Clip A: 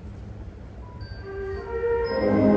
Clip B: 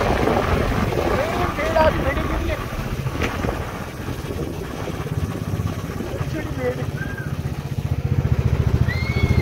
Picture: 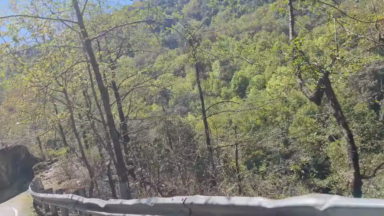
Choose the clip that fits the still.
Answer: B